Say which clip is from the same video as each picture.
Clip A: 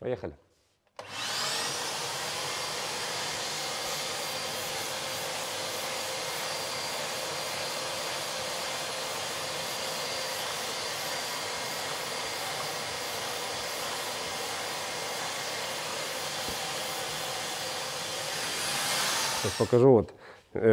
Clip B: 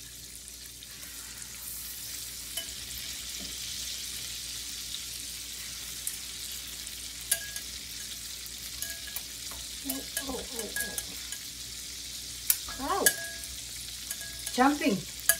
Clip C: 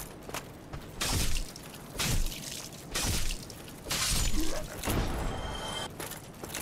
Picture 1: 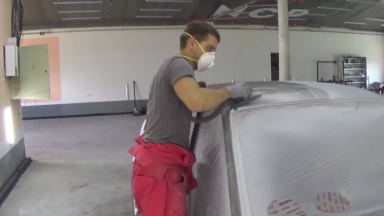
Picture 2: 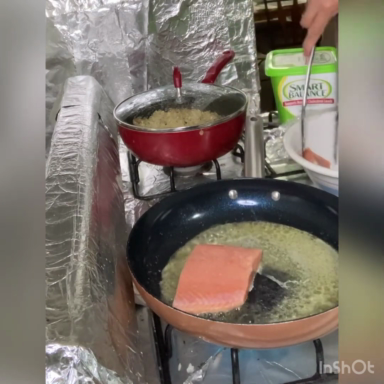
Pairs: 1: A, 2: B